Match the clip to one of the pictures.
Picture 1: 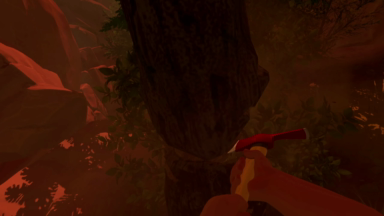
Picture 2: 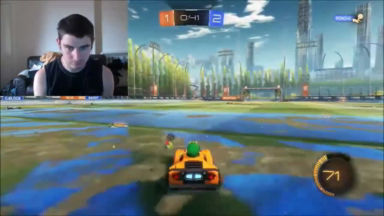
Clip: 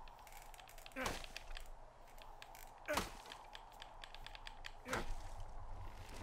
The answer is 1